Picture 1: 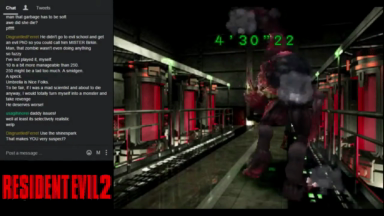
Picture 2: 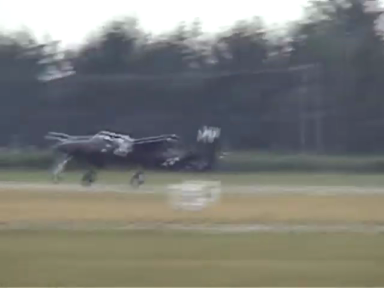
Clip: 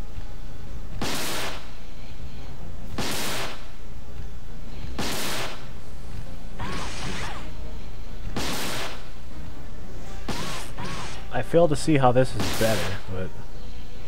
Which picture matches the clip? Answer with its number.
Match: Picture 1